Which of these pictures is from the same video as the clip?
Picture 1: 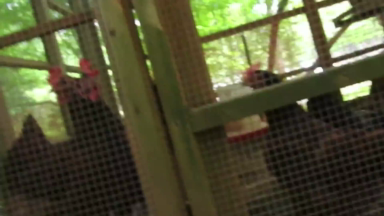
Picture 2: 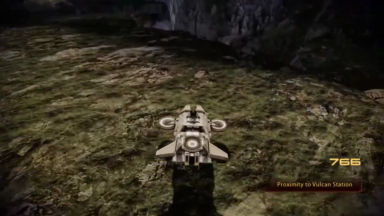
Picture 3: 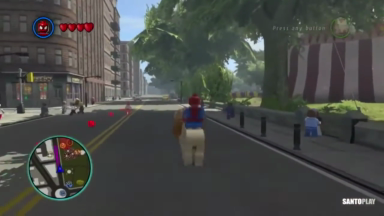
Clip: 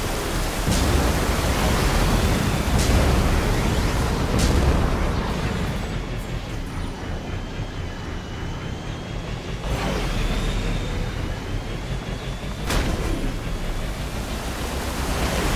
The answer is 2